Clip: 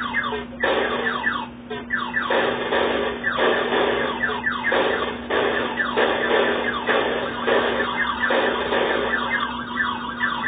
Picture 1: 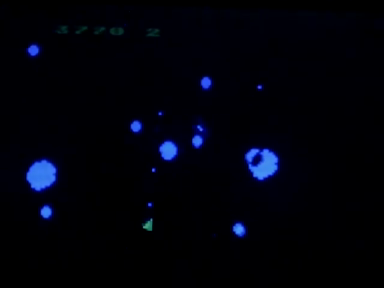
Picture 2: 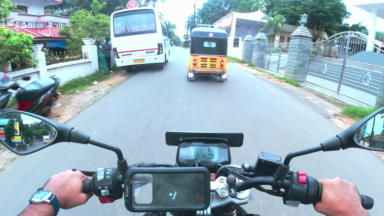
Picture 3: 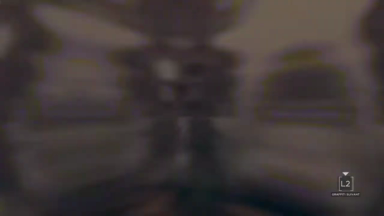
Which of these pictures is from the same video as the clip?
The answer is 1